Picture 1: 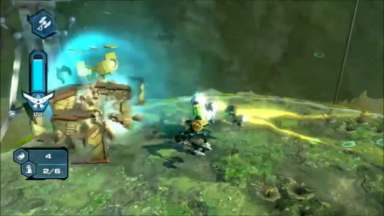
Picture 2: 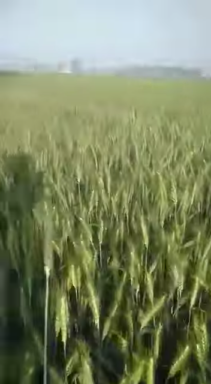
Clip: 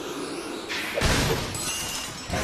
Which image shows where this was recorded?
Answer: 1